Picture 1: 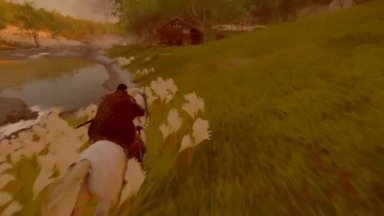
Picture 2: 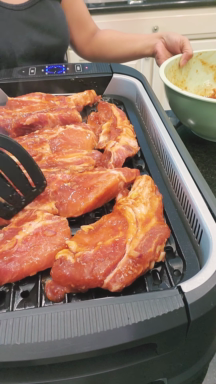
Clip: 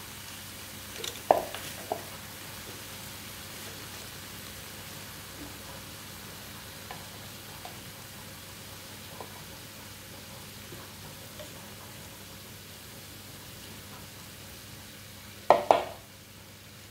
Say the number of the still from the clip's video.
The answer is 2